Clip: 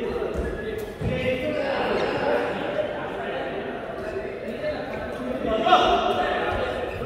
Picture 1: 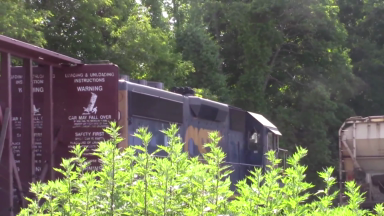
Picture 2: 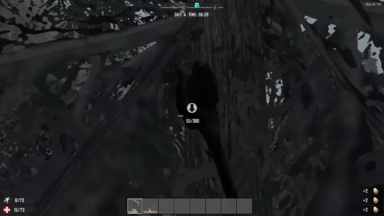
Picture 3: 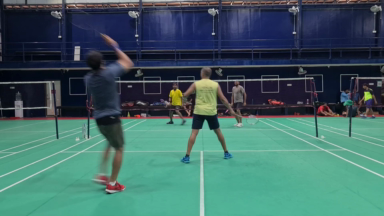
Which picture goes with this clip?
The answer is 3